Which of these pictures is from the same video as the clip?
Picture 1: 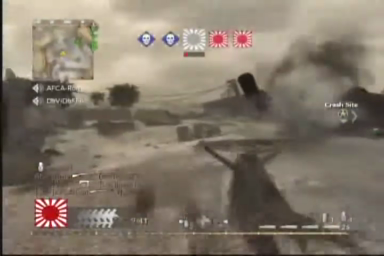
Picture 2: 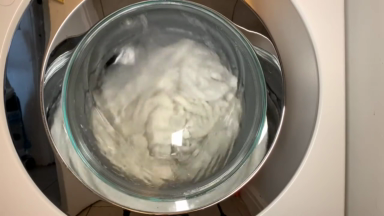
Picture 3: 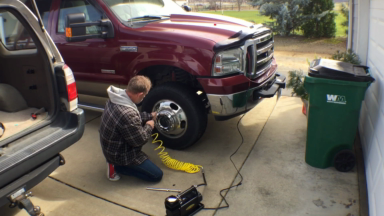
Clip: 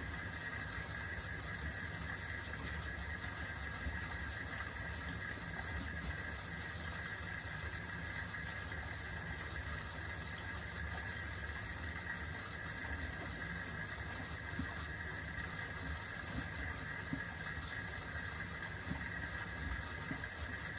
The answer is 2